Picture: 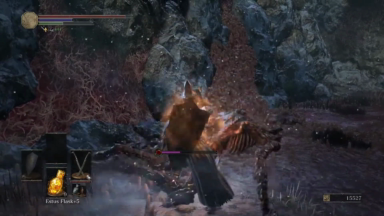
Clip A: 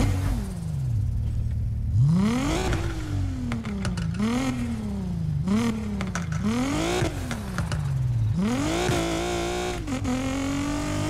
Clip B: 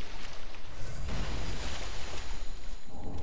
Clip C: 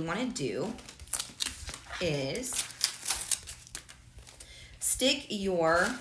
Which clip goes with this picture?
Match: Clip B